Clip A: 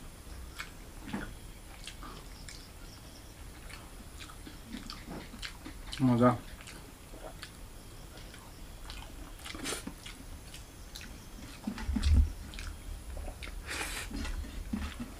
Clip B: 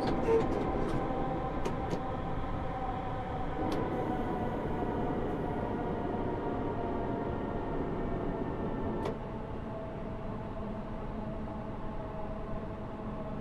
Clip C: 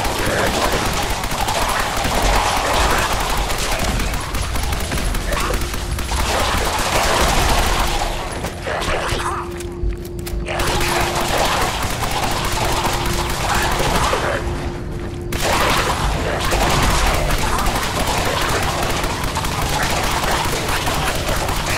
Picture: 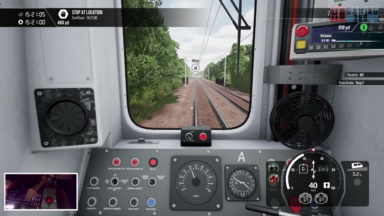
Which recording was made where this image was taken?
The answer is B